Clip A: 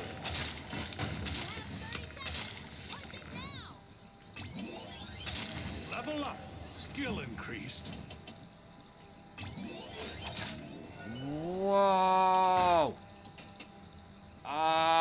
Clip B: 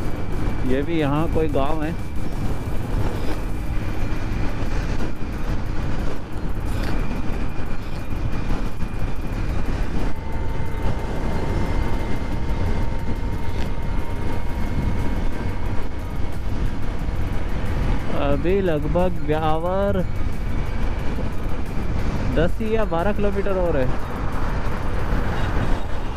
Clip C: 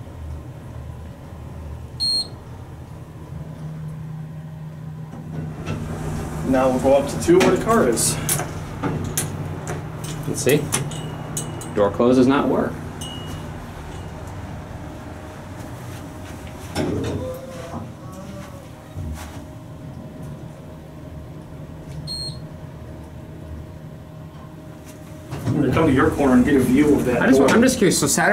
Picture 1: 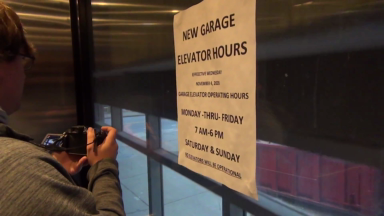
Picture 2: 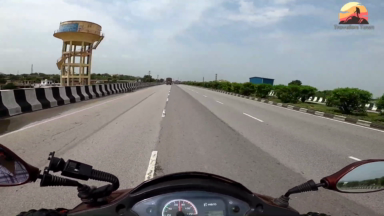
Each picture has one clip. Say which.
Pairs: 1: C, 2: B